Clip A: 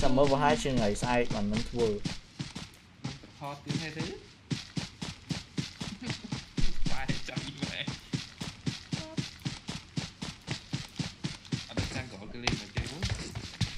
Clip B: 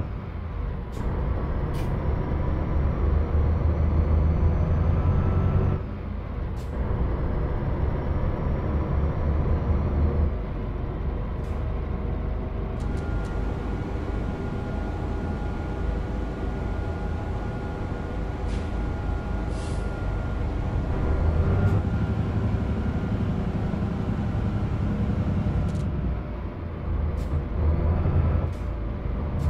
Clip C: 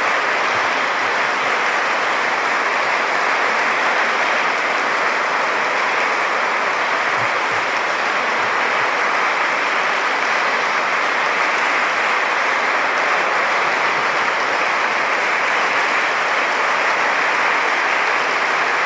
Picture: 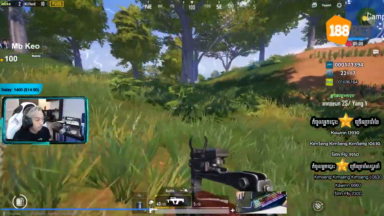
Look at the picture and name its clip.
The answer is A